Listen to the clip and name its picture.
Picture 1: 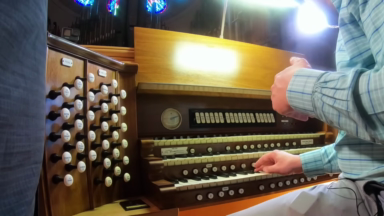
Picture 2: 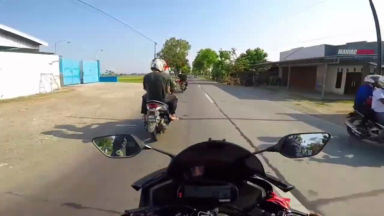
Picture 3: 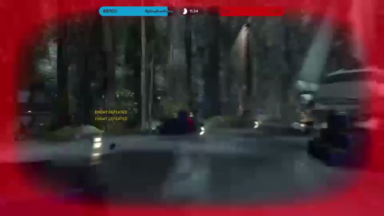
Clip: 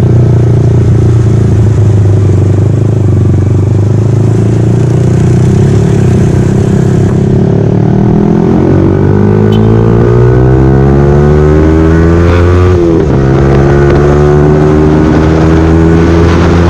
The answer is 2